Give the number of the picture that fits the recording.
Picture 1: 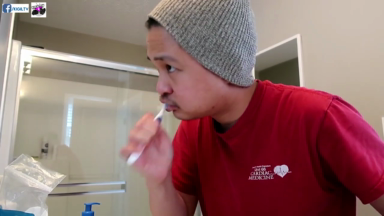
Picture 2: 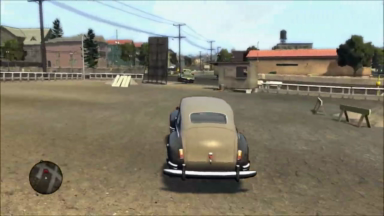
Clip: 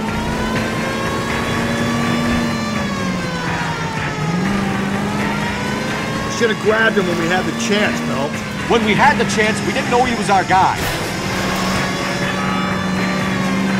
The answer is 2